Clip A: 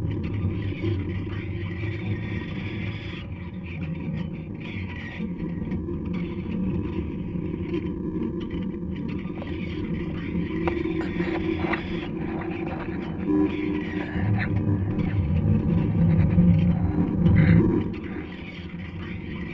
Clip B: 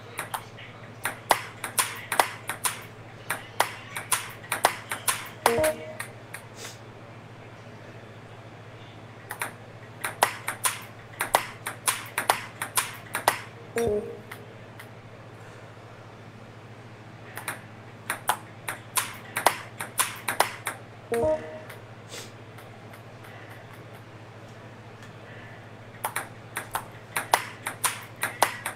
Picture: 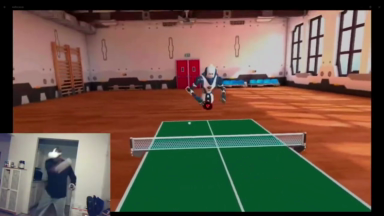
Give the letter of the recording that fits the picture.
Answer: B